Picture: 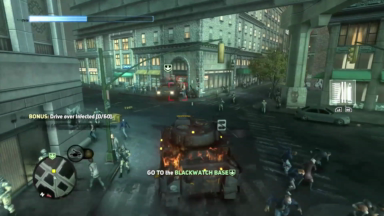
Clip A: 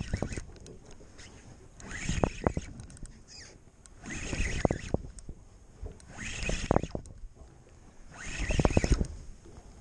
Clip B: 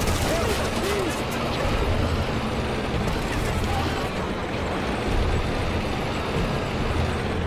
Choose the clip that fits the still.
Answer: B